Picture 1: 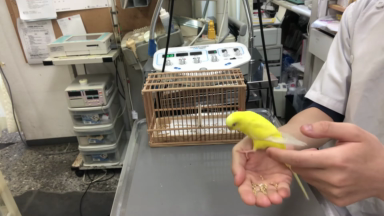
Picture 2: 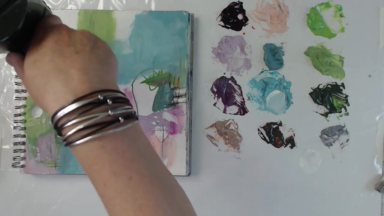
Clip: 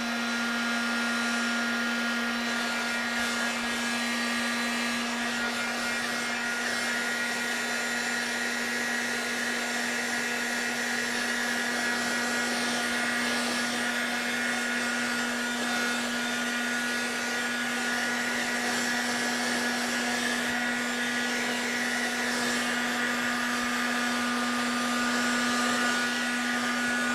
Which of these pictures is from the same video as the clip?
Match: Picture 2